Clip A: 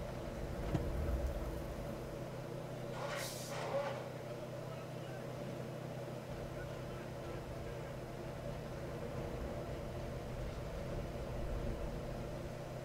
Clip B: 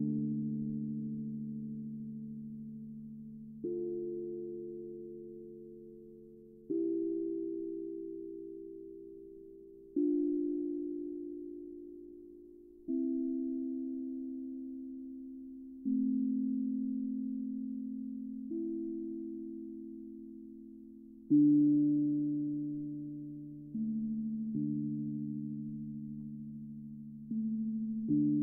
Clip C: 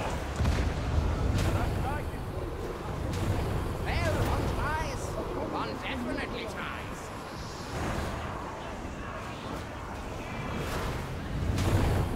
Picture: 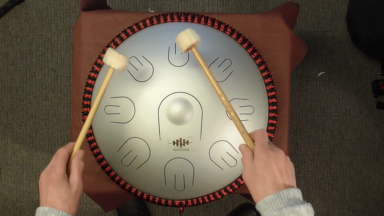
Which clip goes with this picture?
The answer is B